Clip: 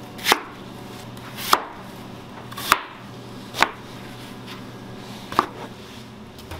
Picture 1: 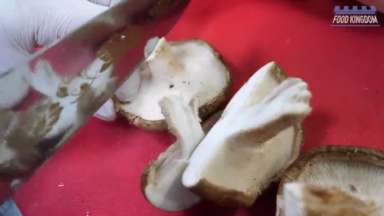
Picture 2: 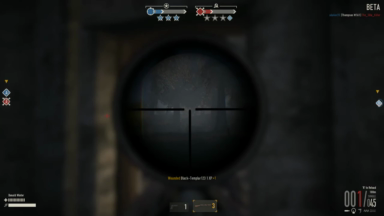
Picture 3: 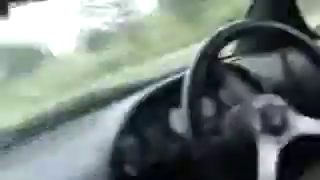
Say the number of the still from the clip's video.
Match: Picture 1